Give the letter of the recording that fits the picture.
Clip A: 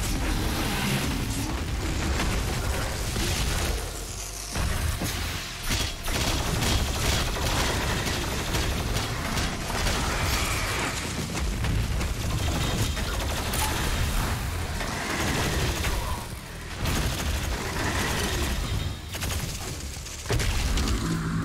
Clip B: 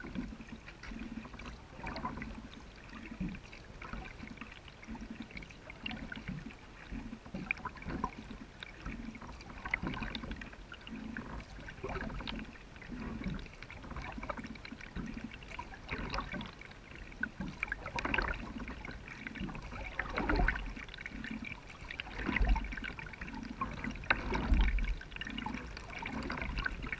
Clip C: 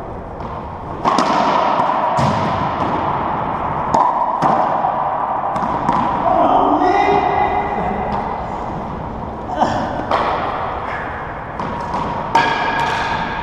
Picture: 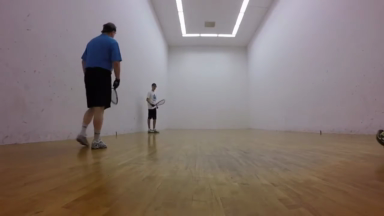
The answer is C